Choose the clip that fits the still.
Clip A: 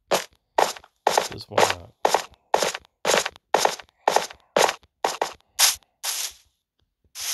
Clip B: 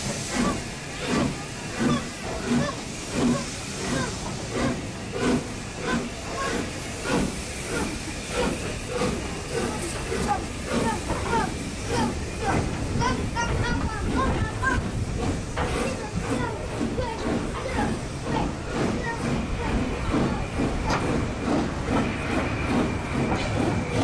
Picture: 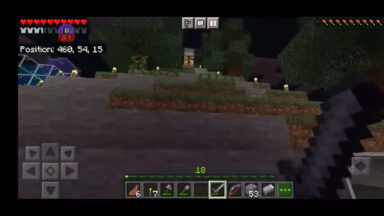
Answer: A